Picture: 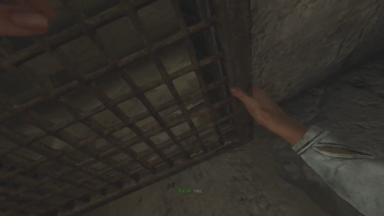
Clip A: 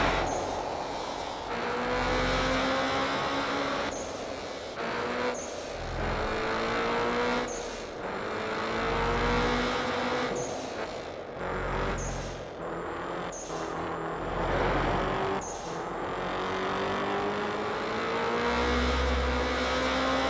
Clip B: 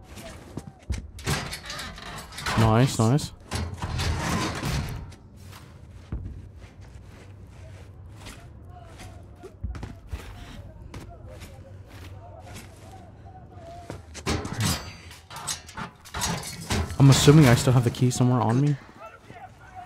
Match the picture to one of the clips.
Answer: B